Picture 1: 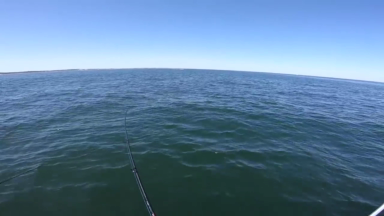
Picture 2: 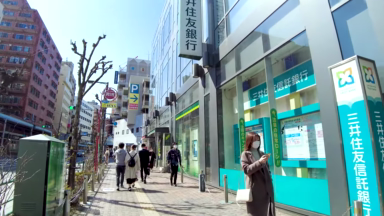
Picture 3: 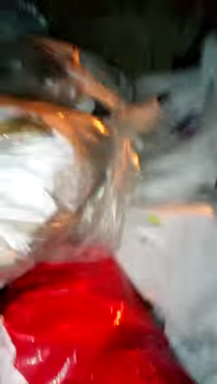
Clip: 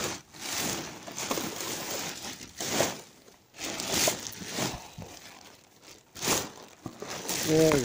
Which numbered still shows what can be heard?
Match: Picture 3